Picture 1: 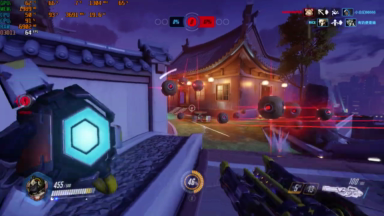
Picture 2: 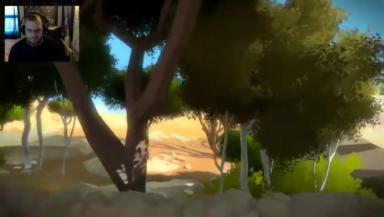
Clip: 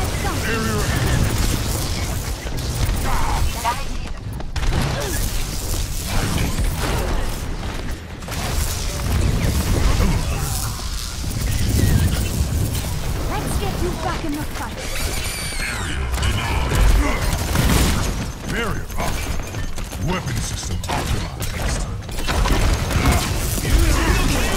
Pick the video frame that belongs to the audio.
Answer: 1